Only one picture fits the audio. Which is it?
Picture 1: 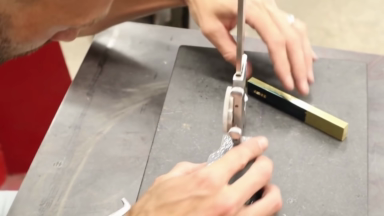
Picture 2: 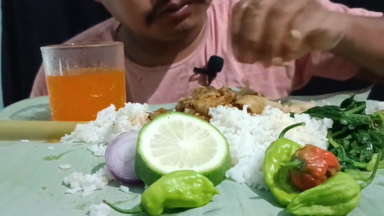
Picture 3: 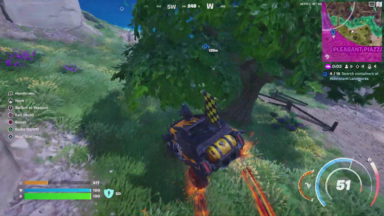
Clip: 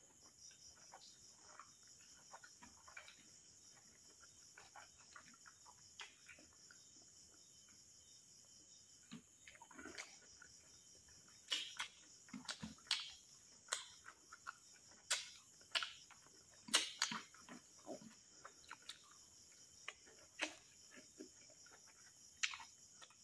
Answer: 2